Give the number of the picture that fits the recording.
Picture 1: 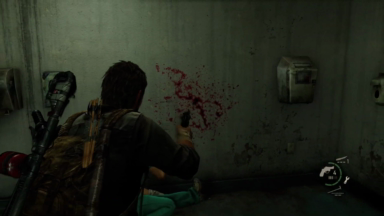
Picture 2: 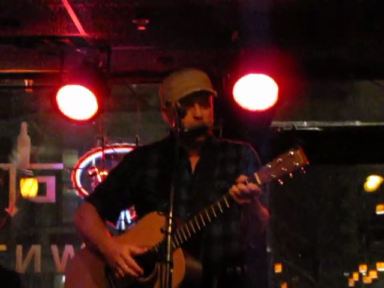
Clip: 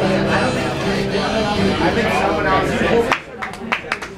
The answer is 2